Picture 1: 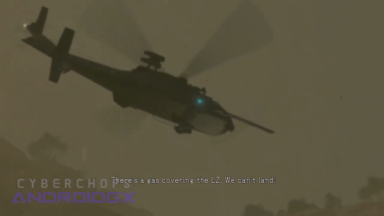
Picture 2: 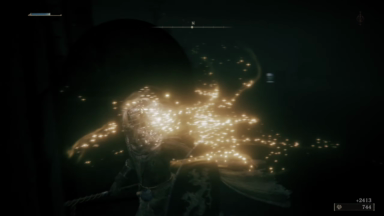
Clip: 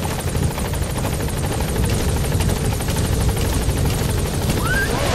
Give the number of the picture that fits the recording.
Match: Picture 1